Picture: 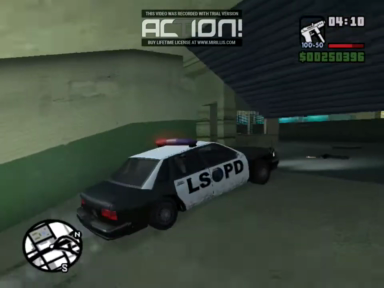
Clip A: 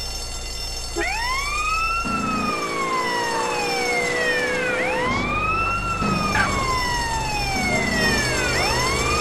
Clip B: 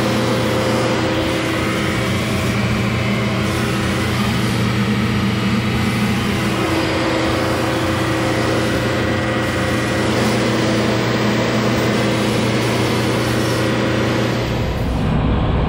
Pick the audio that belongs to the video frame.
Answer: A